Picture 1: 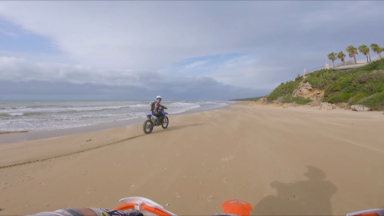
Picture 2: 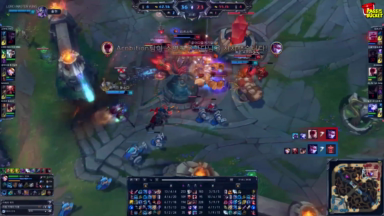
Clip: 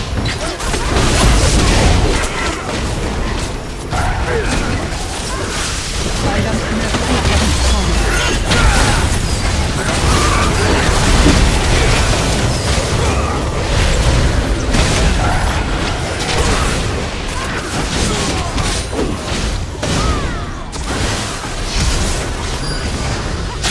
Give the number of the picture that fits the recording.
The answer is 2